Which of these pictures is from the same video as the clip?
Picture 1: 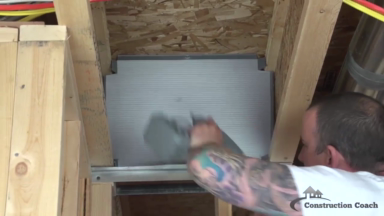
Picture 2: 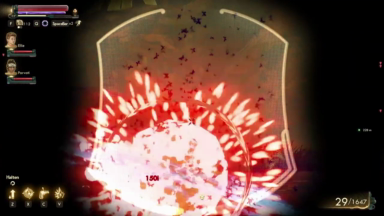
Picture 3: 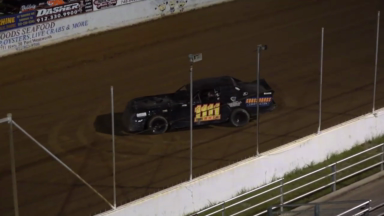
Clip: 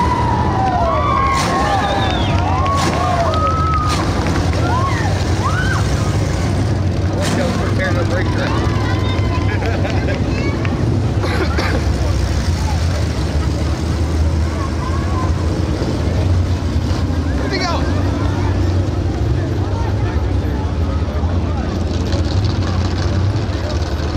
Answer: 3